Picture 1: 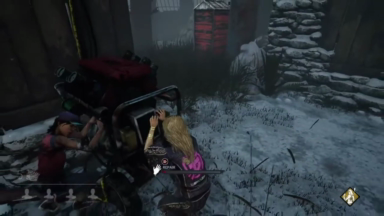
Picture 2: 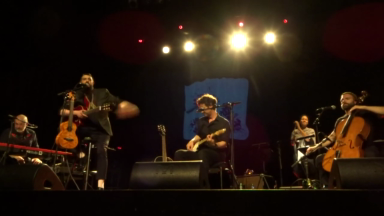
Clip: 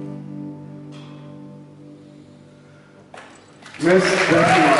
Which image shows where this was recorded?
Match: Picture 2